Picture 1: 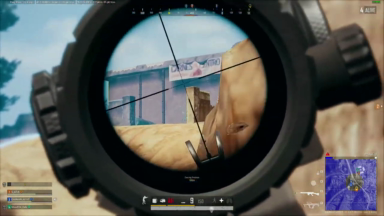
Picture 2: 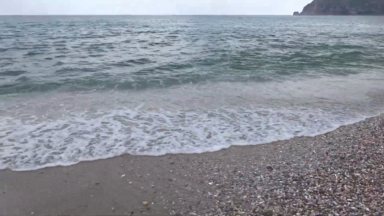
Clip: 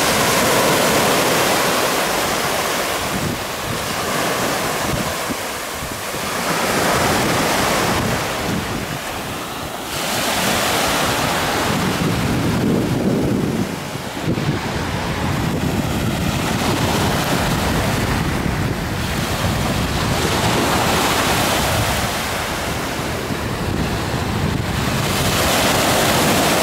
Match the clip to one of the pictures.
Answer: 2